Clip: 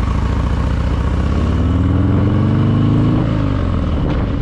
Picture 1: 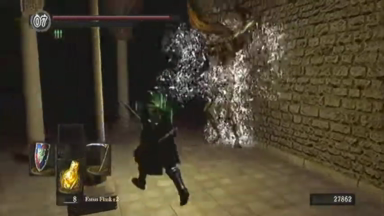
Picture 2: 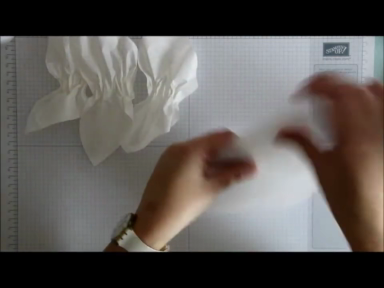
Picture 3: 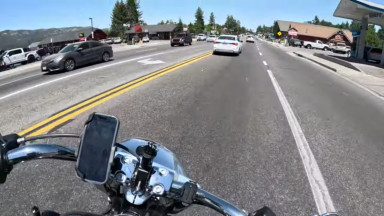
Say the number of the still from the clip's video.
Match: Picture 3